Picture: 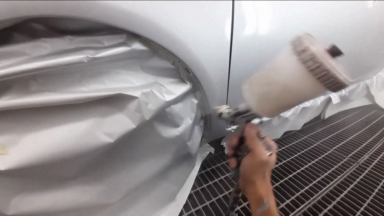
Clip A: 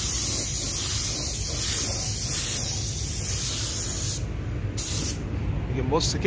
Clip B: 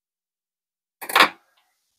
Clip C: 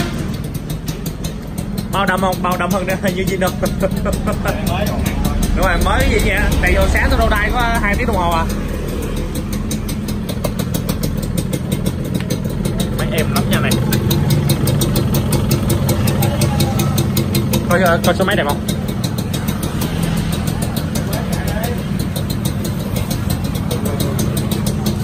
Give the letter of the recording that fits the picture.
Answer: A